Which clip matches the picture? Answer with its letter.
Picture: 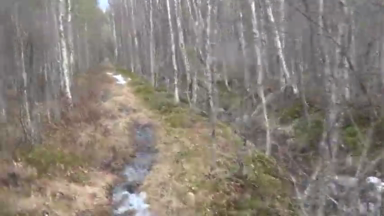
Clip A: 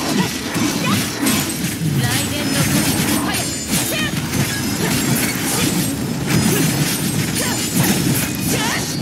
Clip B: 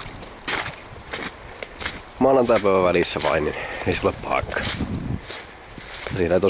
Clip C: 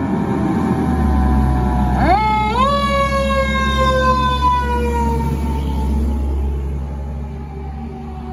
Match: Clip B